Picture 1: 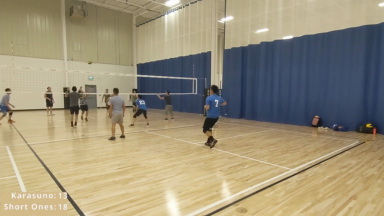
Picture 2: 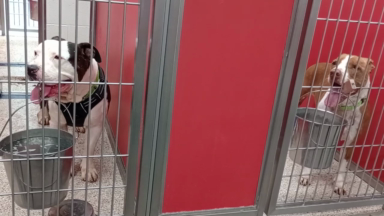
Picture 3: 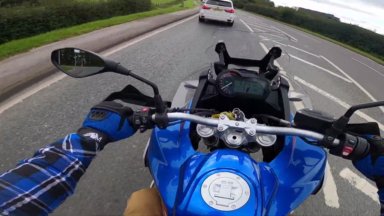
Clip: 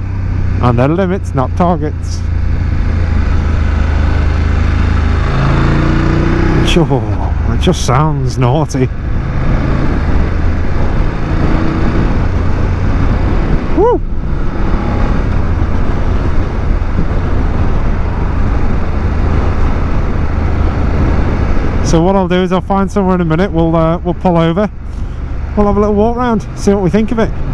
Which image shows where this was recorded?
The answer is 3